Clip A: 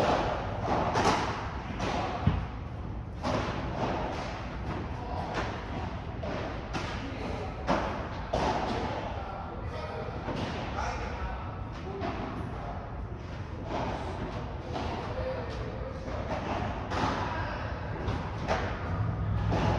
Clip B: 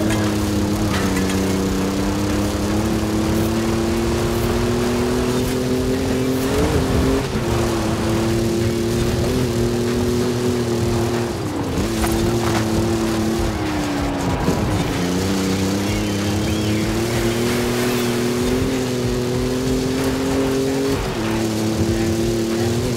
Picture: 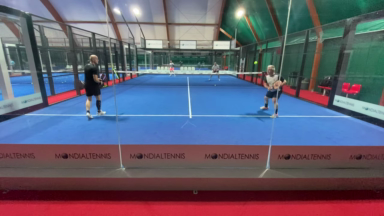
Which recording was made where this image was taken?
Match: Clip A